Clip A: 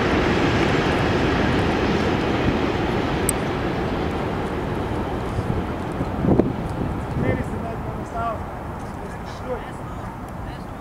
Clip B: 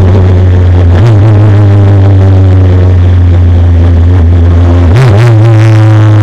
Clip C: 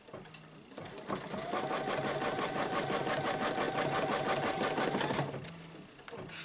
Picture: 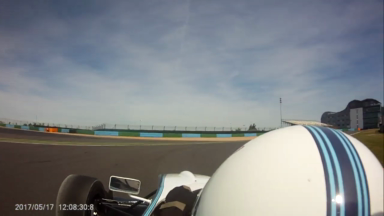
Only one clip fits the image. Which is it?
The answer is B